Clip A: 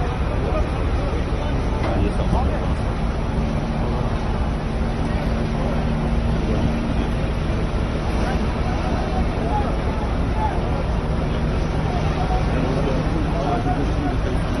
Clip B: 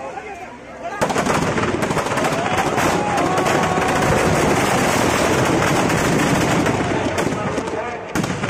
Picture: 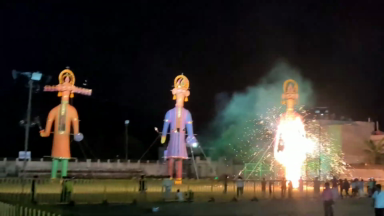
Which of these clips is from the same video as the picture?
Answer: B